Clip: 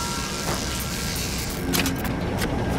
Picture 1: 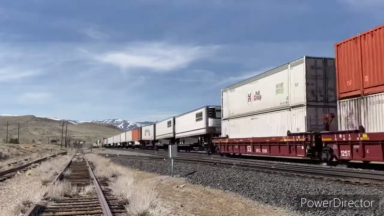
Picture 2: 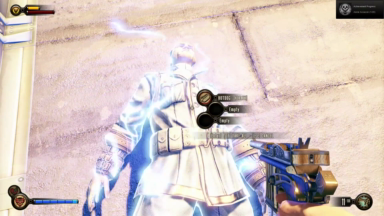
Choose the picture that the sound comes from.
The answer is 2